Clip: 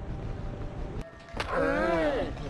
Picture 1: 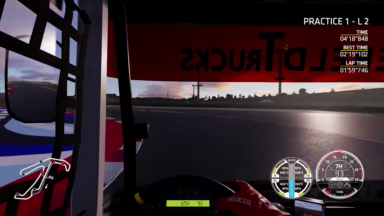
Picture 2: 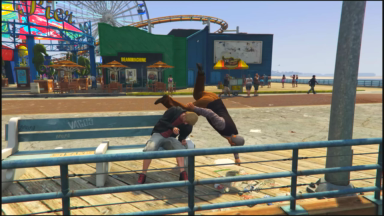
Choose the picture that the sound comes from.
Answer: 2